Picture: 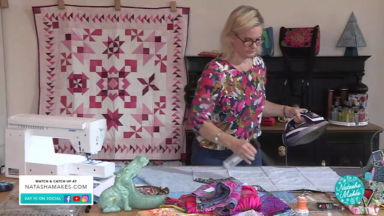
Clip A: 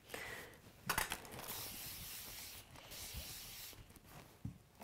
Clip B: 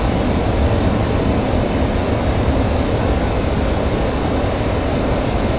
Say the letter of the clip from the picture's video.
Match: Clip A